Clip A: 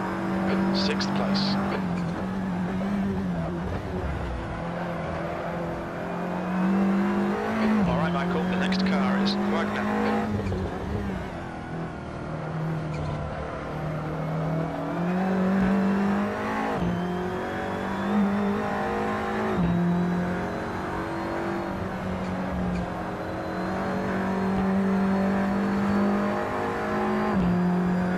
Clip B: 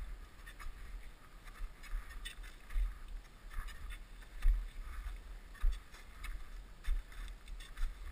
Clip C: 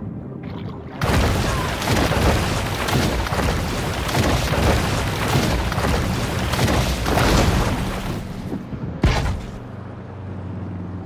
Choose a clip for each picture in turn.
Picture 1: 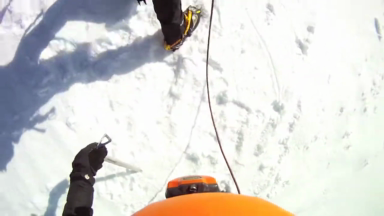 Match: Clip B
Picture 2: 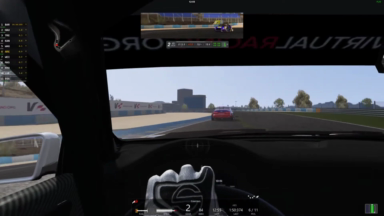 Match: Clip A